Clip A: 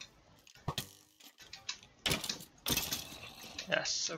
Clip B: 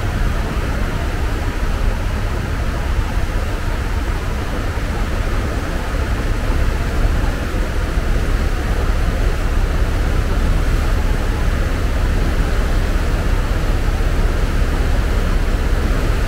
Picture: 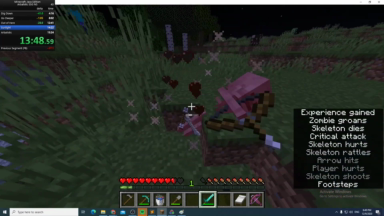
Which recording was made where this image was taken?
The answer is A